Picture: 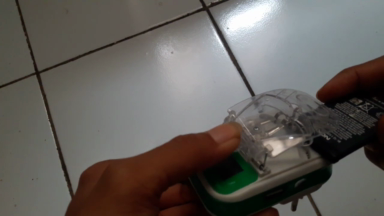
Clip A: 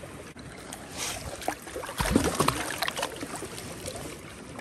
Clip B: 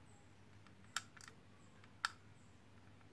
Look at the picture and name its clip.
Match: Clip B